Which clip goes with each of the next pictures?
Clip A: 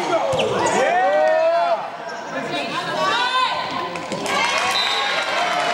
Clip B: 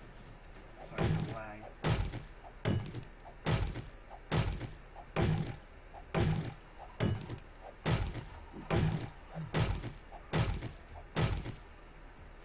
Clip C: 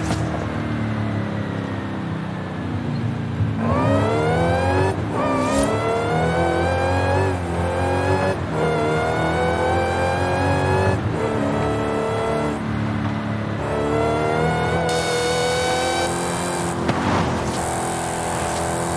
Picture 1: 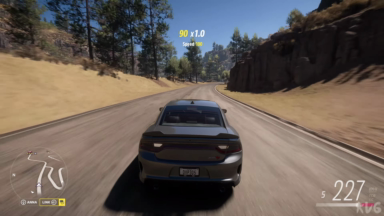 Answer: C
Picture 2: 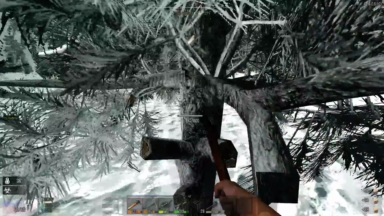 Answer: B